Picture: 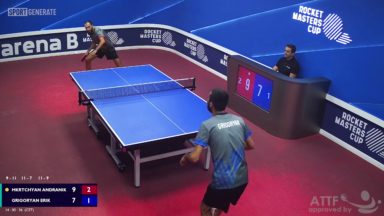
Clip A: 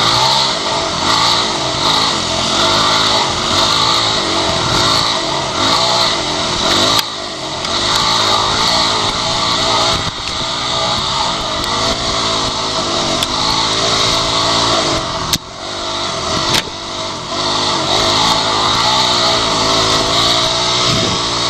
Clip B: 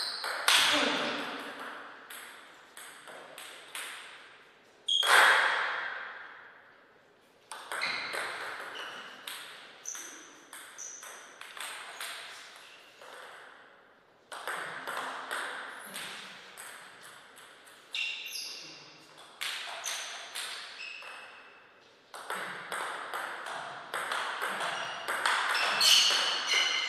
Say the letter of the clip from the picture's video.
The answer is B